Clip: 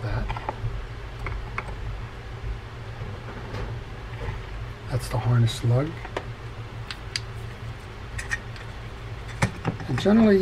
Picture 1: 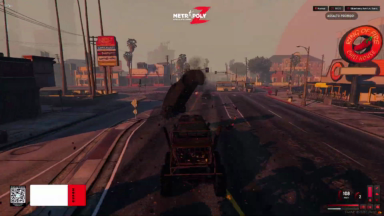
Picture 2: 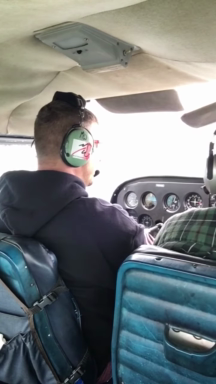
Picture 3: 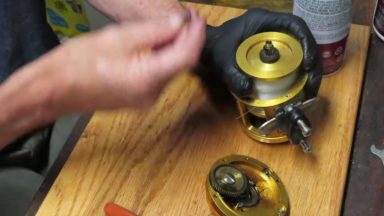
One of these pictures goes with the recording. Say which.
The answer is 3